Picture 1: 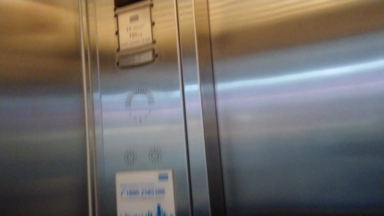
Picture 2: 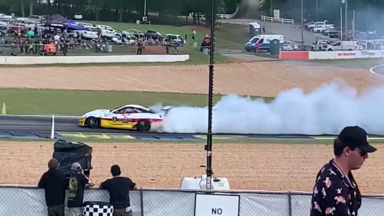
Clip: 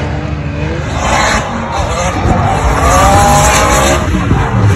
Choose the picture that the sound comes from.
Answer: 2